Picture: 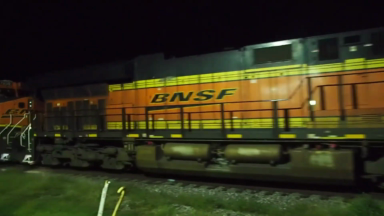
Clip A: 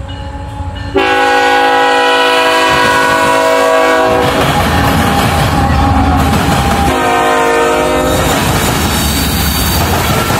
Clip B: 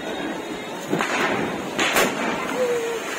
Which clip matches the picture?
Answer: A